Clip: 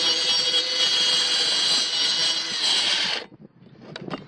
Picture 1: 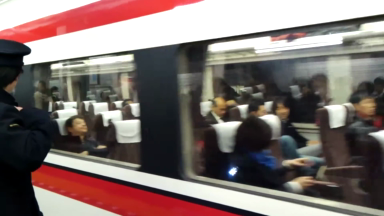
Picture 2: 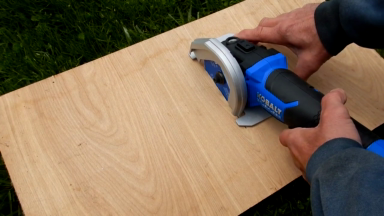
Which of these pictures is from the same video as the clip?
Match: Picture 2